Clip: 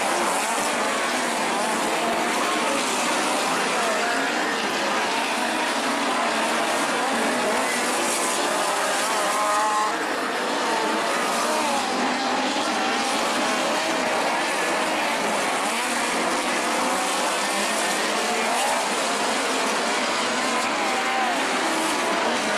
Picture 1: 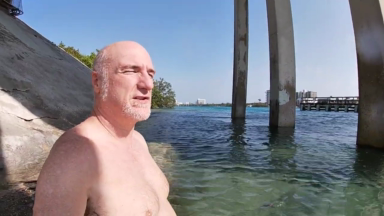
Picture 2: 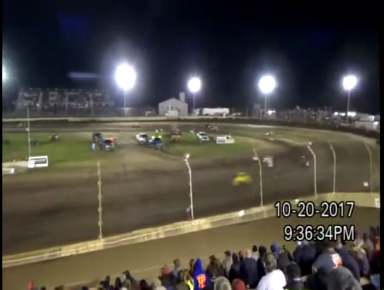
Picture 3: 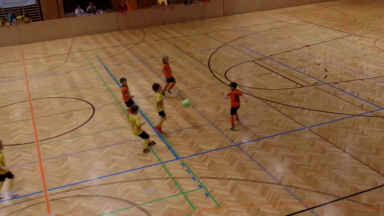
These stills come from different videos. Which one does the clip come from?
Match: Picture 2